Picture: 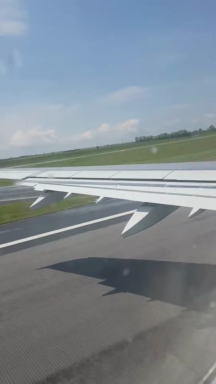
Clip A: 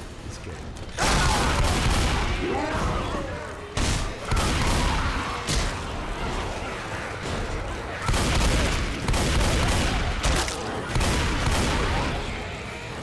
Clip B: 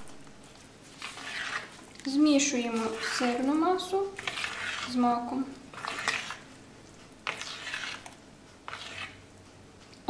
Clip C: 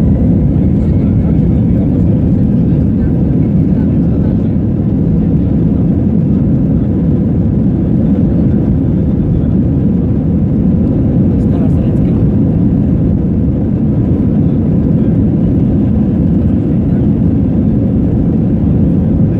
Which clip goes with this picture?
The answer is C